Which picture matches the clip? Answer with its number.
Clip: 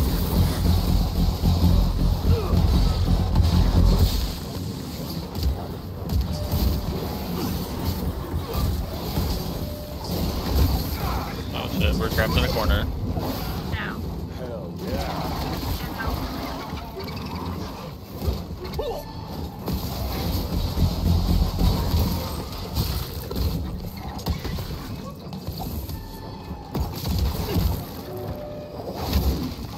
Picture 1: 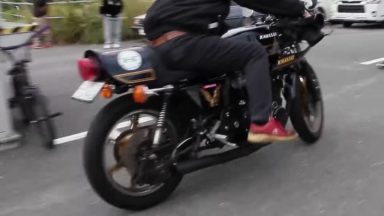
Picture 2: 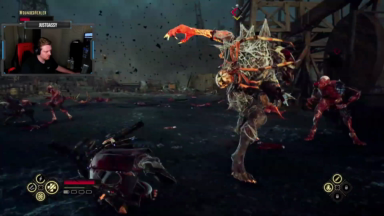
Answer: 2